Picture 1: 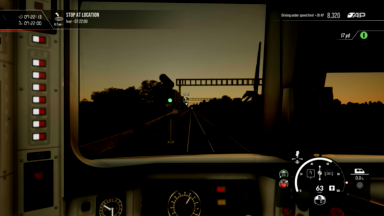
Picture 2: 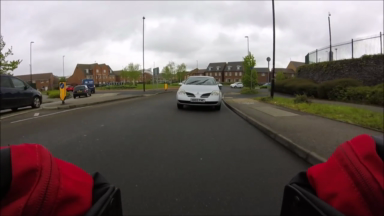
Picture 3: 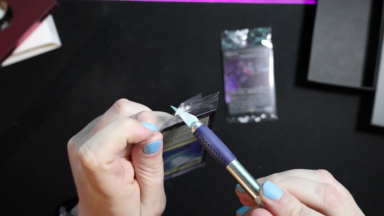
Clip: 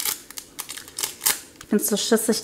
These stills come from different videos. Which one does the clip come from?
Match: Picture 3